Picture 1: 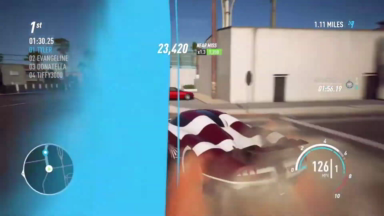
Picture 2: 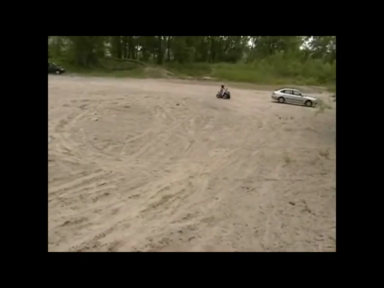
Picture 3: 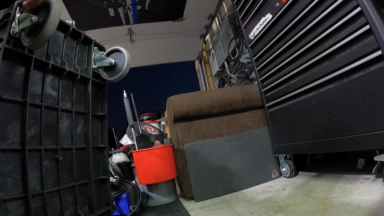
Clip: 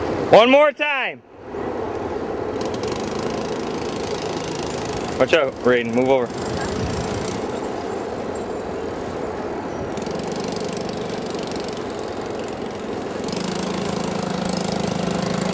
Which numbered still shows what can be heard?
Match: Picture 2